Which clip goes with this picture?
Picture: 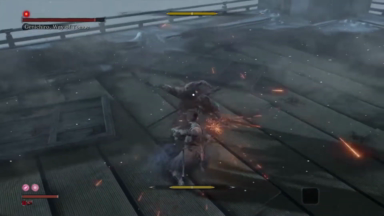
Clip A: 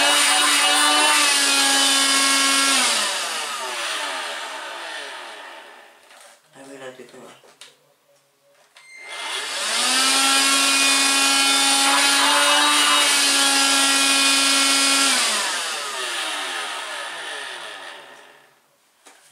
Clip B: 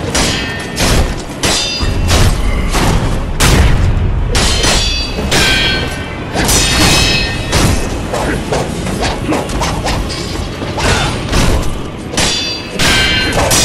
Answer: B